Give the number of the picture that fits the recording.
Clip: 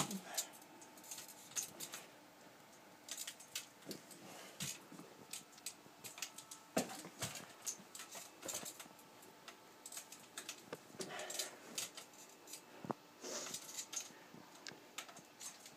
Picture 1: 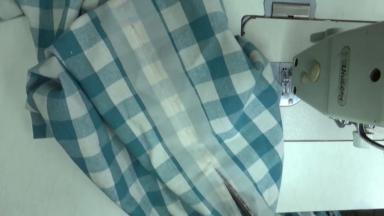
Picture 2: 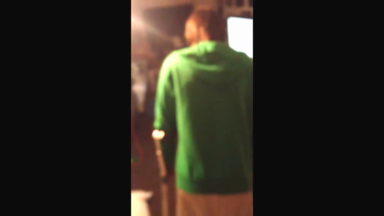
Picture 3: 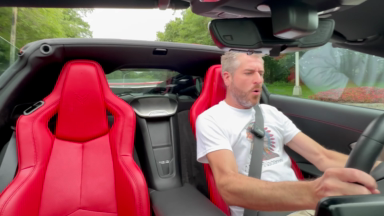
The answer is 2